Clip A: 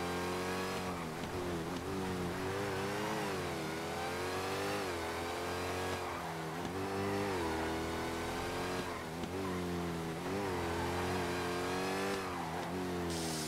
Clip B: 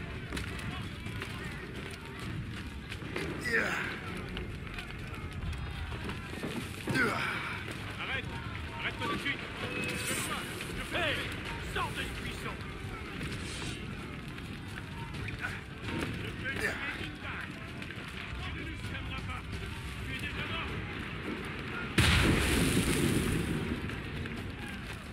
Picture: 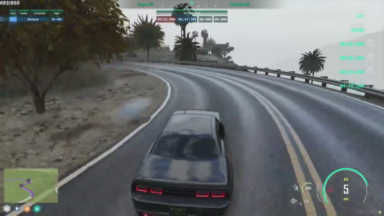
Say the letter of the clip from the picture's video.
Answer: A